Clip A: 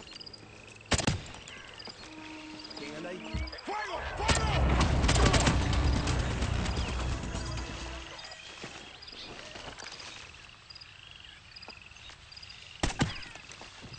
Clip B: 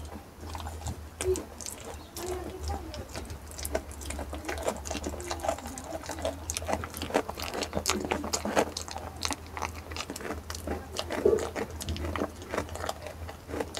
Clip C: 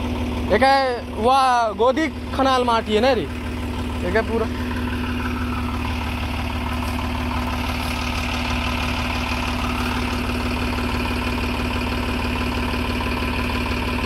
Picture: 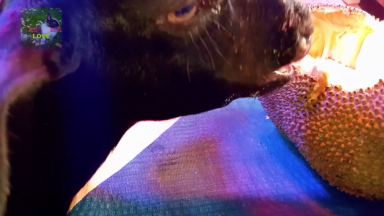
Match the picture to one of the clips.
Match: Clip B